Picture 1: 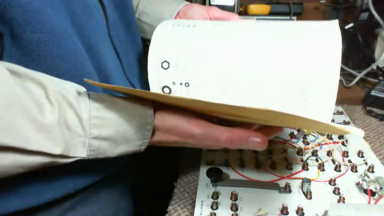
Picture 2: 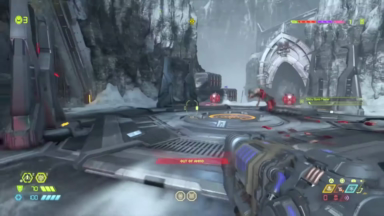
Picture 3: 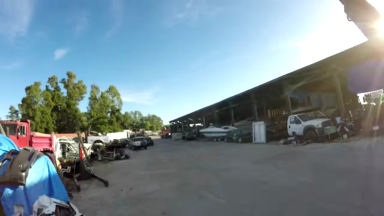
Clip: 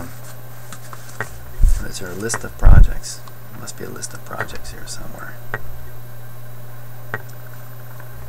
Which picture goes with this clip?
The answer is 1